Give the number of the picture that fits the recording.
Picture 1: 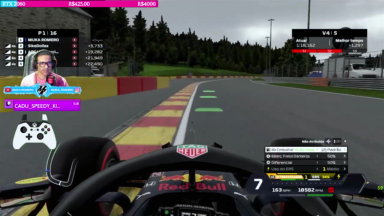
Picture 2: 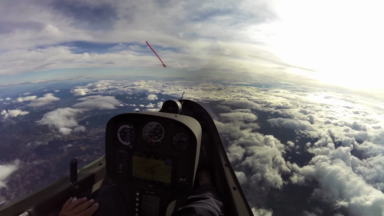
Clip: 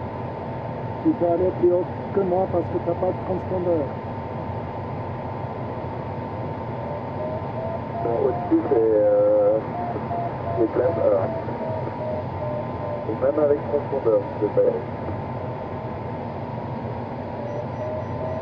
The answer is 2